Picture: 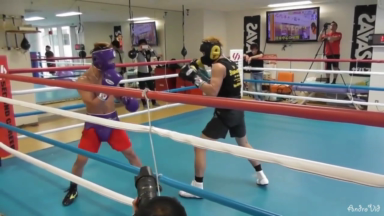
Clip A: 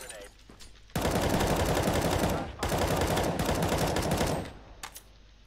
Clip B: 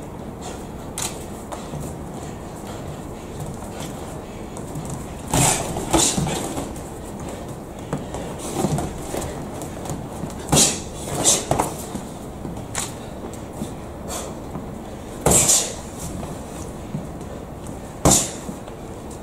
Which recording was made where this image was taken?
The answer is B